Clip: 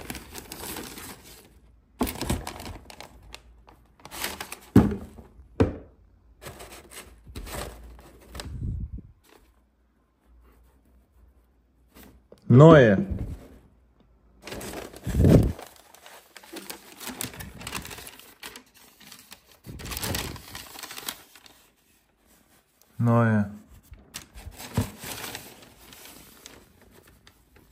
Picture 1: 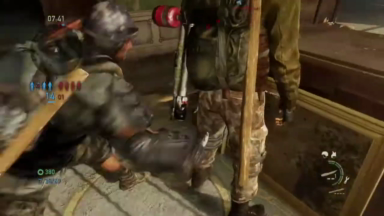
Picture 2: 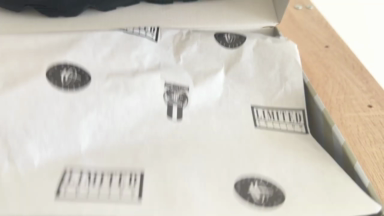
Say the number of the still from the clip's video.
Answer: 2